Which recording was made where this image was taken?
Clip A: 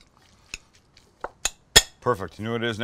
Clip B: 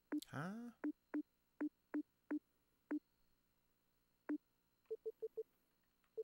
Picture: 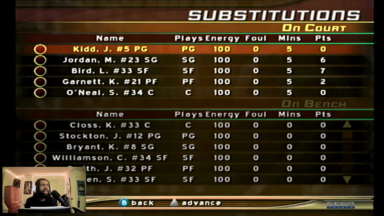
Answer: B